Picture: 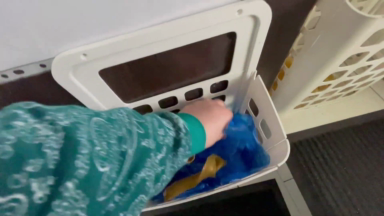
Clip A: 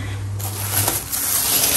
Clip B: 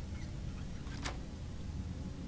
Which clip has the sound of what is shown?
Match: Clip A